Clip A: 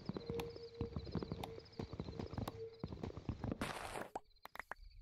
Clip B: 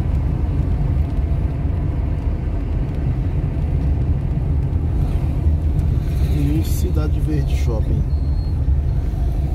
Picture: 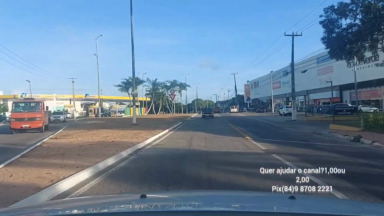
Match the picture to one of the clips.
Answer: B